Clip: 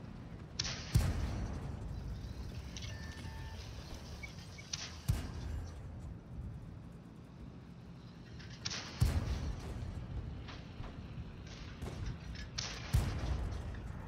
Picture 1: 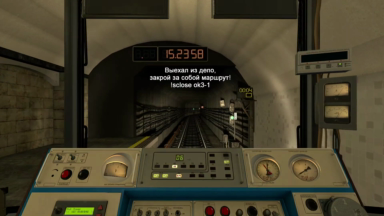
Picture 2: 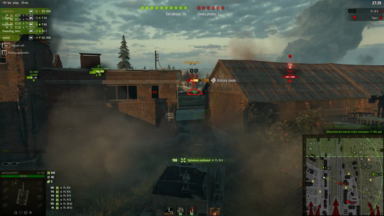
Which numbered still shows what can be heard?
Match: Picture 2